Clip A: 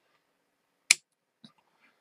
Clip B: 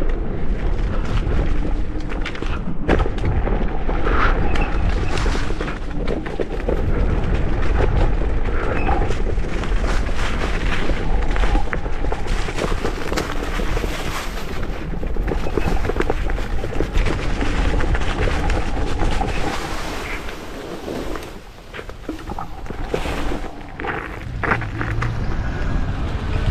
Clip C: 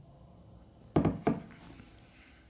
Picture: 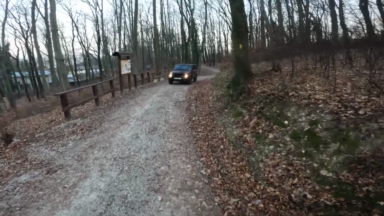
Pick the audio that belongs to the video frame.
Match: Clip B